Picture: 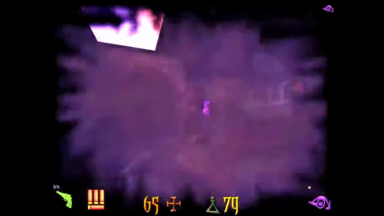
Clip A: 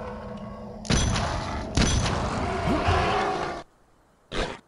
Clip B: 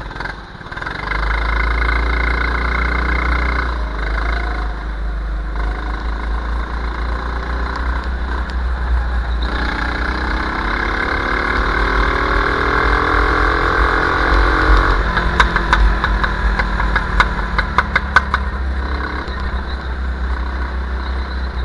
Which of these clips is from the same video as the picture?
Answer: A